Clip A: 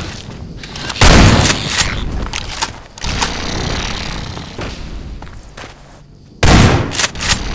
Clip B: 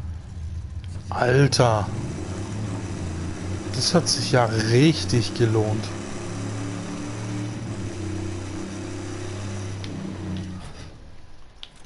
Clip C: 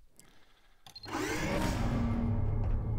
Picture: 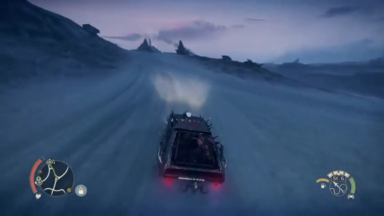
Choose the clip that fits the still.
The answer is B